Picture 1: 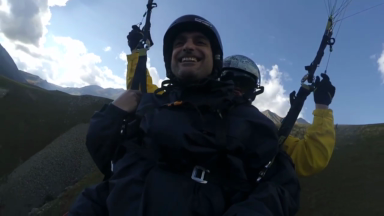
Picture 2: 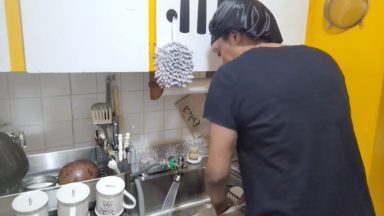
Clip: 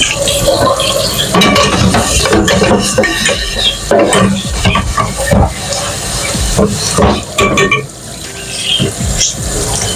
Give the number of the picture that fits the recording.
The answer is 2